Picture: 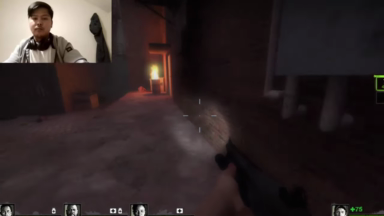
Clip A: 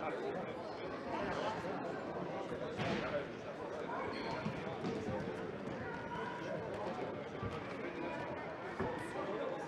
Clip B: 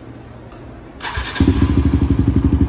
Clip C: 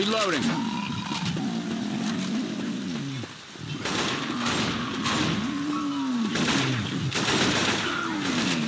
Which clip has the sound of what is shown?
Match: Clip C